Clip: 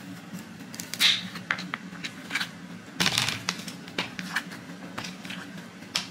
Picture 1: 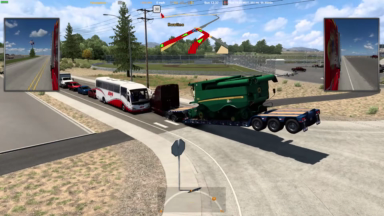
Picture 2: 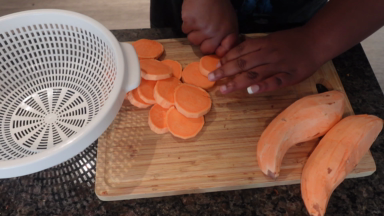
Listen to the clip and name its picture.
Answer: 2